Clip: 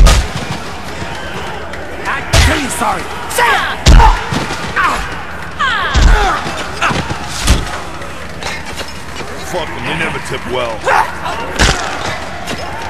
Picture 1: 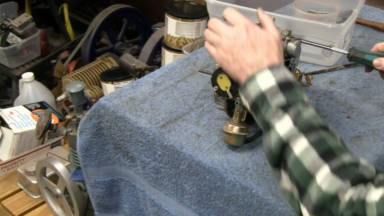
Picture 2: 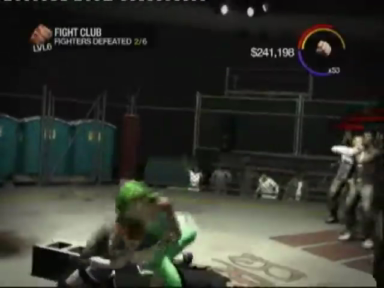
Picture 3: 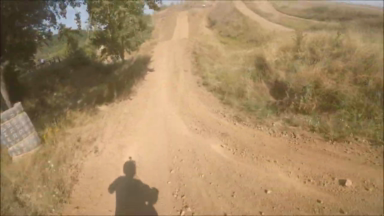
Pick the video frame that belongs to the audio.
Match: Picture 2